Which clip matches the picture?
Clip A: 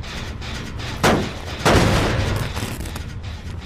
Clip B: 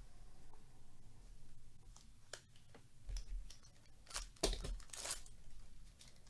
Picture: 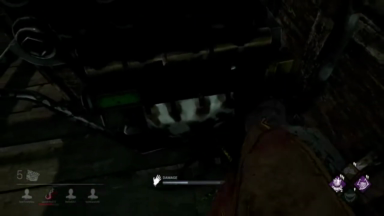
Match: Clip A